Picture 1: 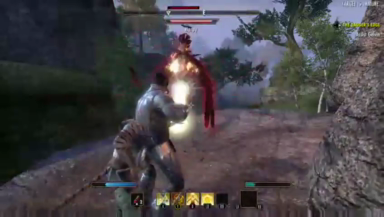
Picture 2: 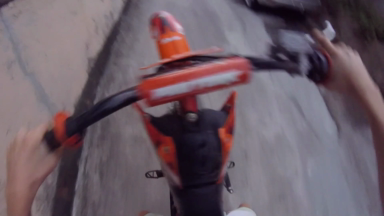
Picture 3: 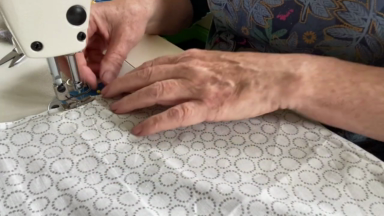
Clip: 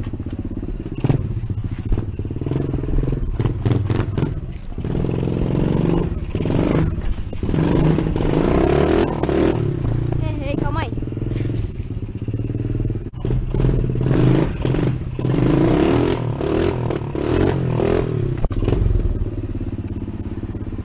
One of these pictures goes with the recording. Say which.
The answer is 2